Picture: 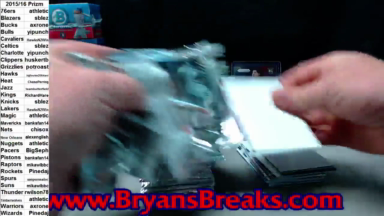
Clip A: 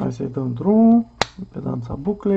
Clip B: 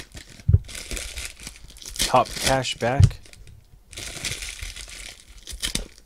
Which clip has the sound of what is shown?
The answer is B